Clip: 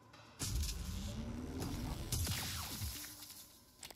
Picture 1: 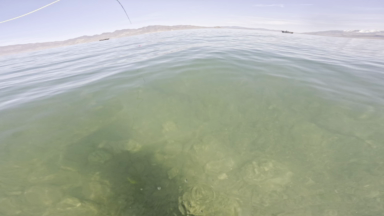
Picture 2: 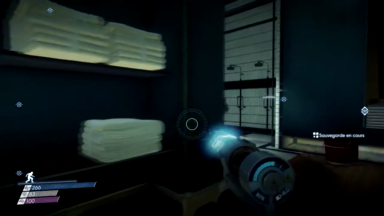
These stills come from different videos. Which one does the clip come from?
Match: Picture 2